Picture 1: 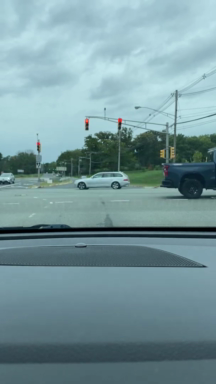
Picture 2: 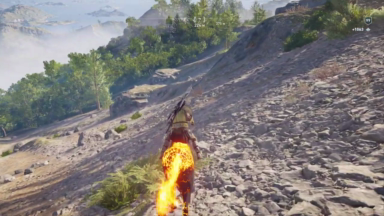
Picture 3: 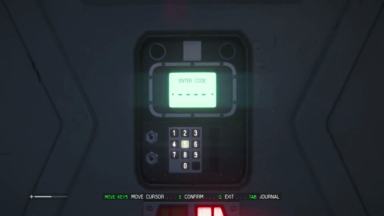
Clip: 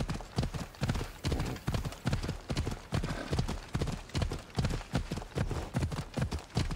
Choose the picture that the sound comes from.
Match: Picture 2